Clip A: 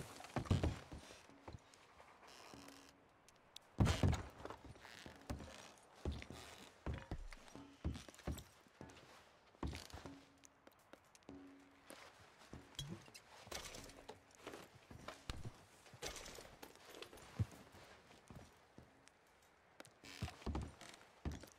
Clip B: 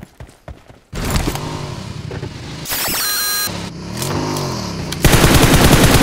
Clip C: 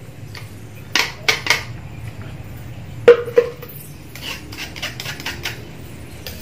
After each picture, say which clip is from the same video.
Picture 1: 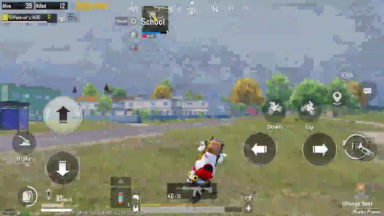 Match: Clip B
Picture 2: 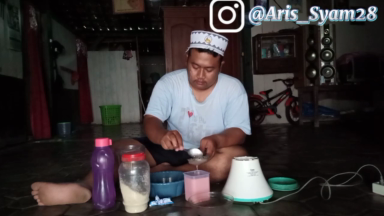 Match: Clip C